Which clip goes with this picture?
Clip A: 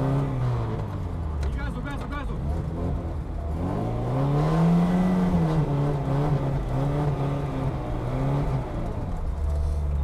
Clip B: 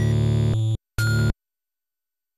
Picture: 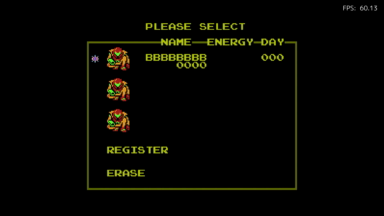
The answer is B